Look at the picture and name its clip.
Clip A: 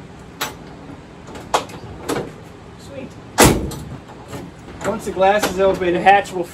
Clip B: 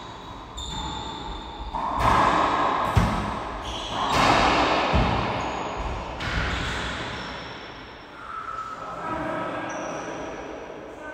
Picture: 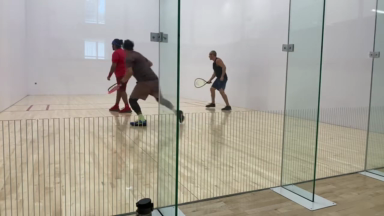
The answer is B